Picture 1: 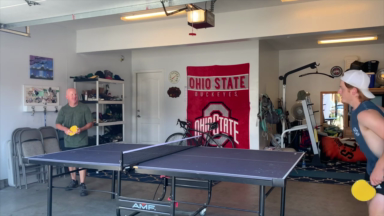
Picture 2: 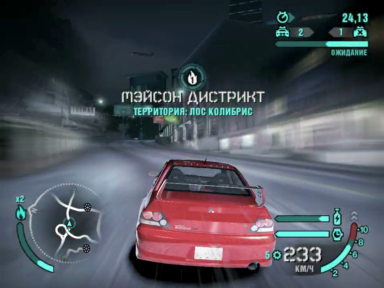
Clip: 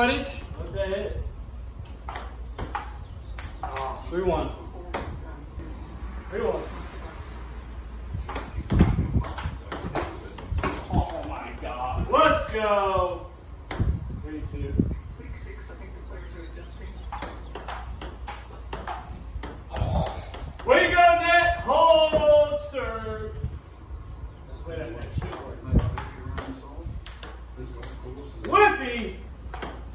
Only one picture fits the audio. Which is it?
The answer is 1